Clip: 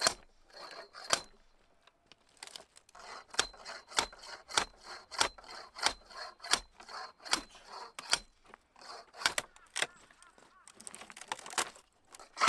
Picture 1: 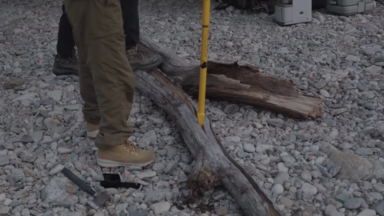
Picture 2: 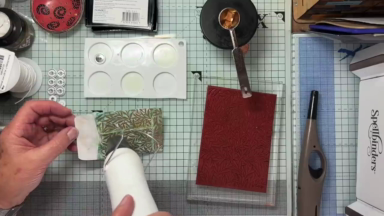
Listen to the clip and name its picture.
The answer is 1